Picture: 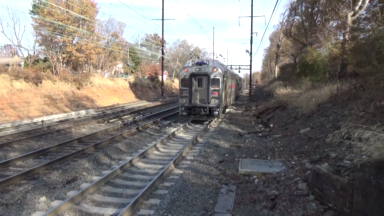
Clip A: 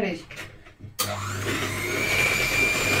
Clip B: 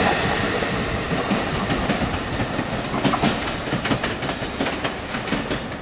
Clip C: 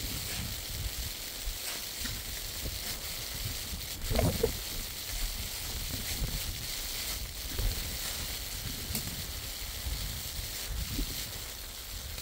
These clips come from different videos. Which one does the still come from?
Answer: B